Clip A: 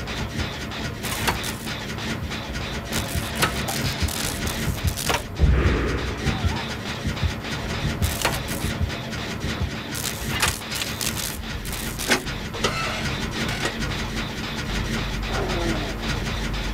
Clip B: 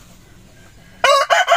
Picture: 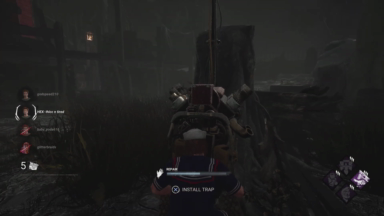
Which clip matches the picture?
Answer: A